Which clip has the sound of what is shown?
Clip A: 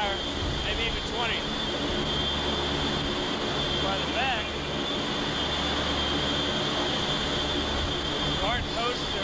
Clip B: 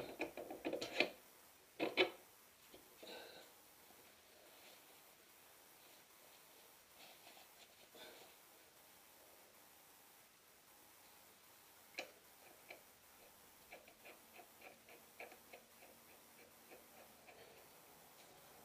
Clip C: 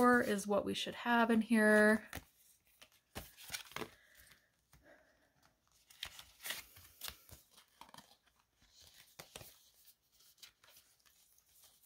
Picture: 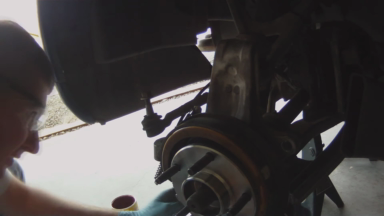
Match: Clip B